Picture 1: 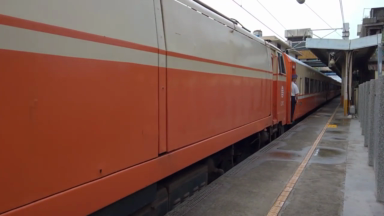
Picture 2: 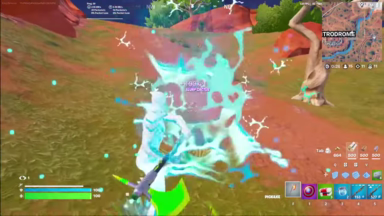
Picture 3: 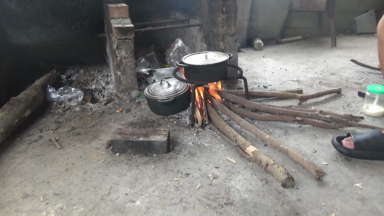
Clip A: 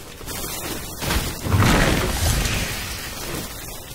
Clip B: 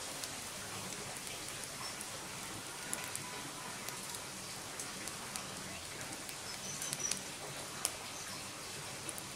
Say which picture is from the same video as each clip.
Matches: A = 2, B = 3